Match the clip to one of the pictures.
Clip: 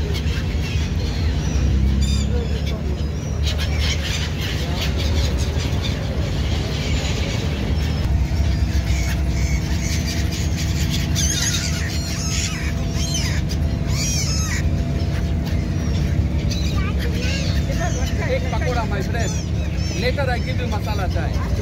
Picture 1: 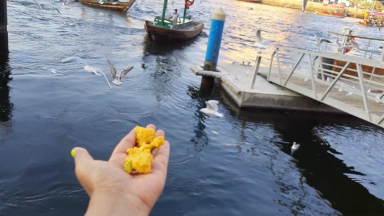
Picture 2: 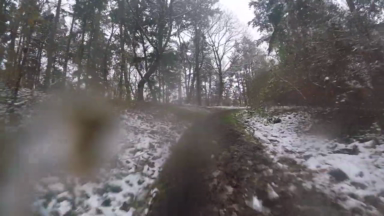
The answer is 1